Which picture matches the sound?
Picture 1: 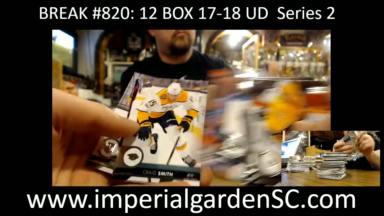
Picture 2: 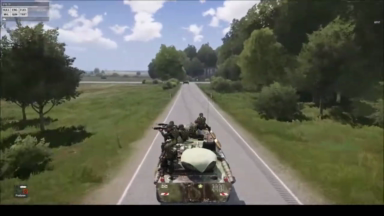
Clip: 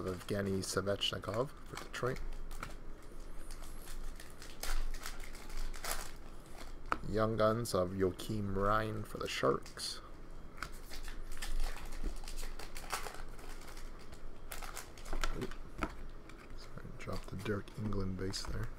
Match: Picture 1